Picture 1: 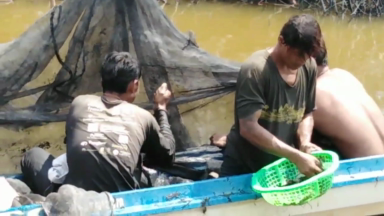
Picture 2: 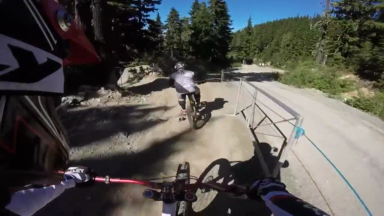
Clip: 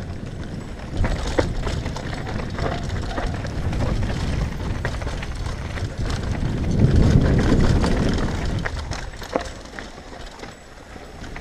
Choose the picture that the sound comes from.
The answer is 2